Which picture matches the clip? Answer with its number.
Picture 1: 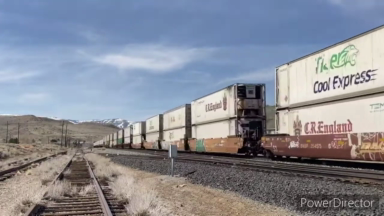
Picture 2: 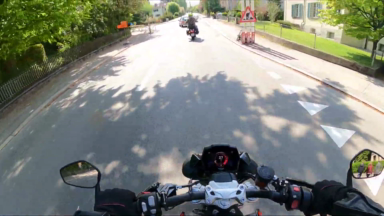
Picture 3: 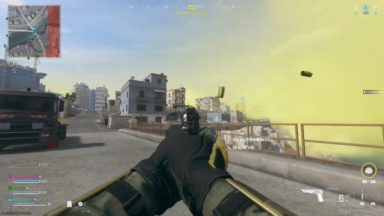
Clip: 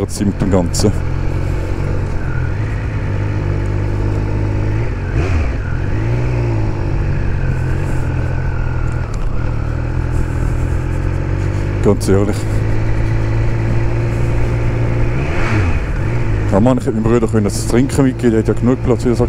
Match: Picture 2